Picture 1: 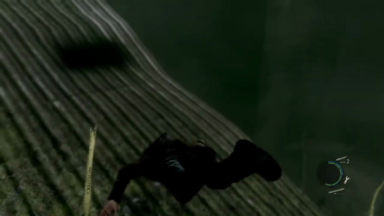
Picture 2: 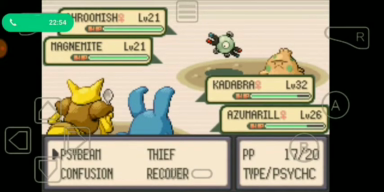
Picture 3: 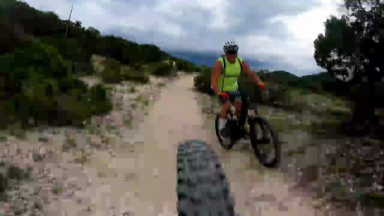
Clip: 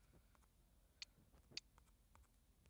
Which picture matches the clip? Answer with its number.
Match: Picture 2